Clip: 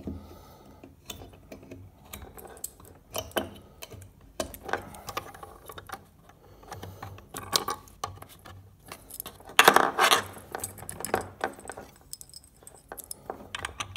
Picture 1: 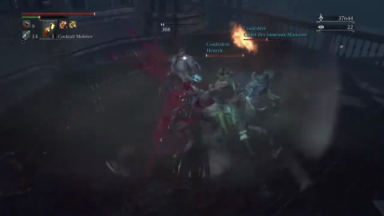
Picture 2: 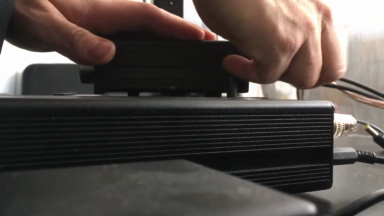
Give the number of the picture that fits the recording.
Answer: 2